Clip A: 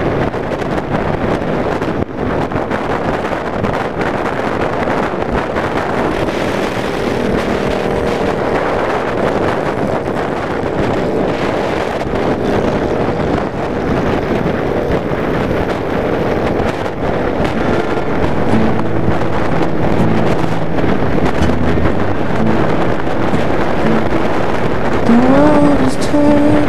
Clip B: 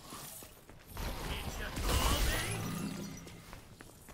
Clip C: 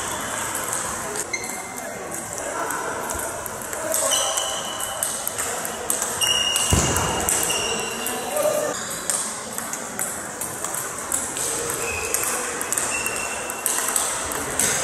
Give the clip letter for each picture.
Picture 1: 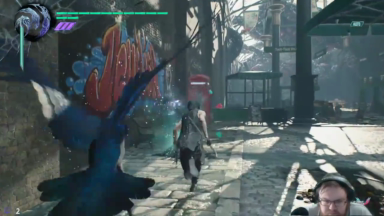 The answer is B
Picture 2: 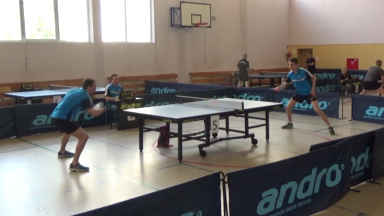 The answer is C